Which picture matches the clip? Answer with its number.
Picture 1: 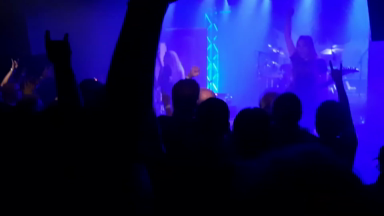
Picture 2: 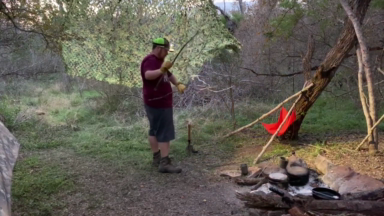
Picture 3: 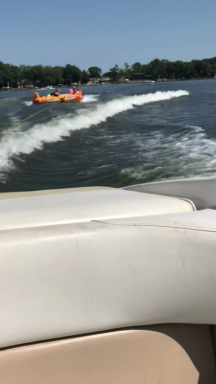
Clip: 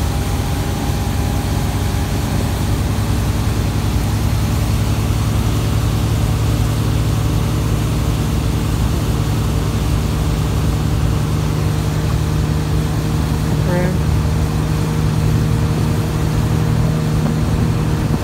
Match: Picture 3